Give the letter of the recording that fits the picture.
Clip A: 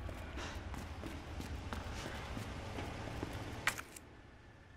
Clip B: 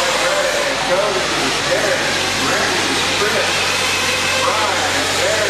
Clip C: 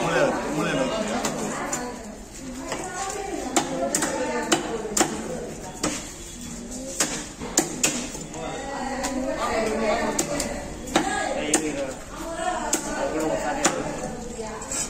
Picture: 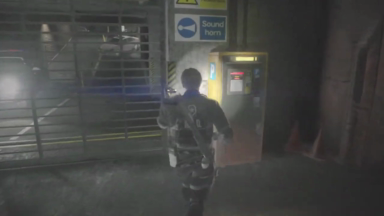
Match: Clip A